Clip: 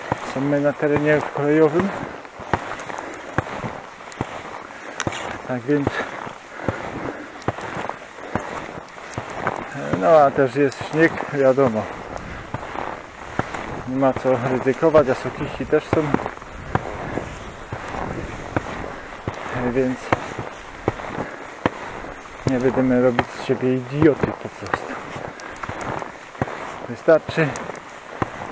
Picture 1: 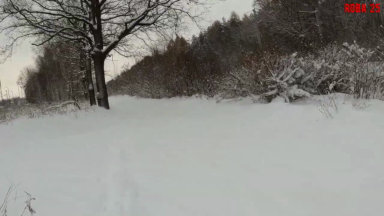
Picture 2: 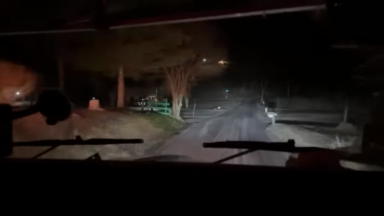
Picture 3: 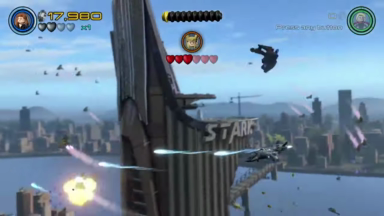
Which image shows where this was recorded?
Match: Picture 1